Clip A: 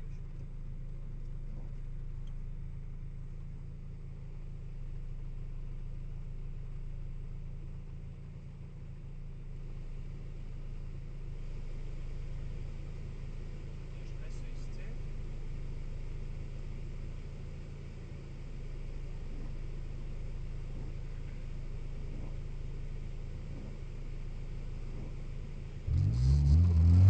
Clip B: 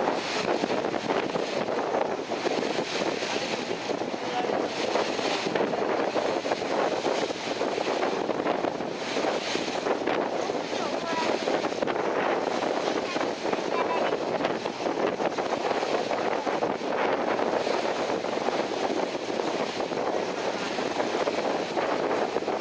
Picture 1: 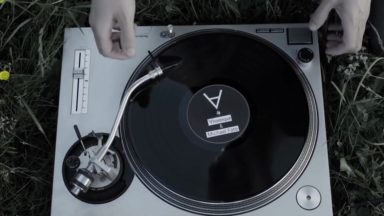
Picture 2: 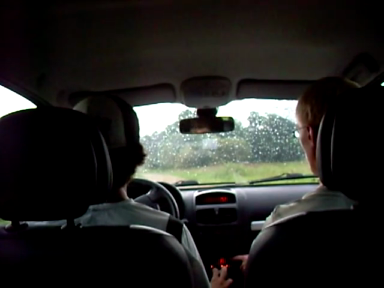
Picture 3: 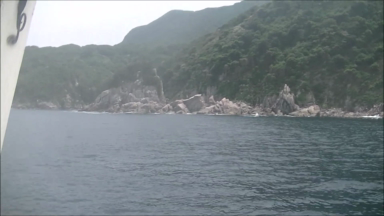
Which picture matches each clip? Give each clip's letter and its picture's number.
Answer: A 2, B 3